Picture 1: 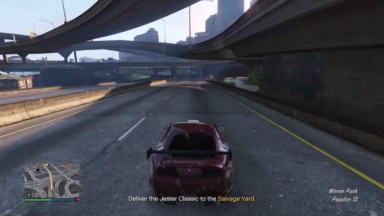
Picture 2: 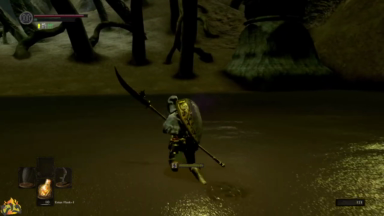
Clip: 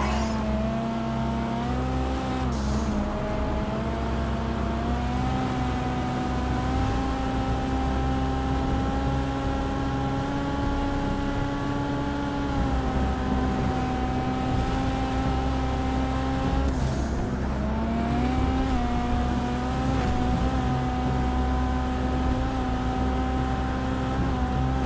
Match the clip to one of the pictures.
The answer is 1